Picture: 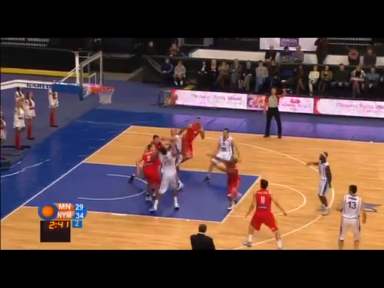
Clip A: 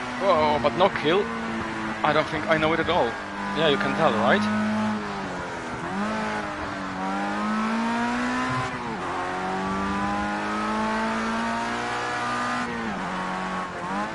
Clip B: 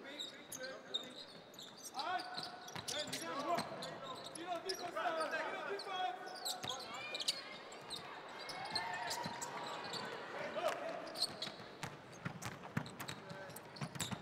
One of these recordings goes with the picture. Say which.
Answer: B